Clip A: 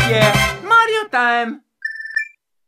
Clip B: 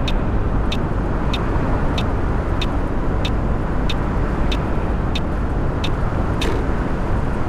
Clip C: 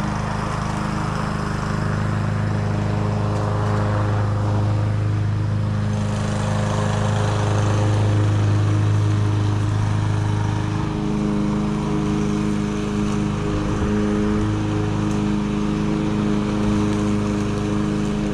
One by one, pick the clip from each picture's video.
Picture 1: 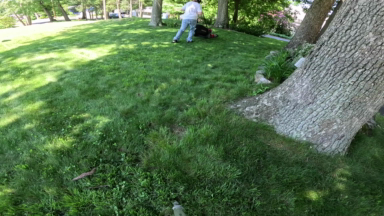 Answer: C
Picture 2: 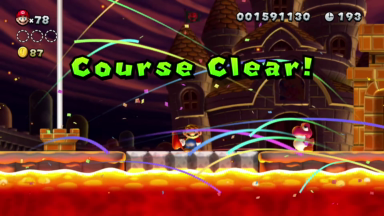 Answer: A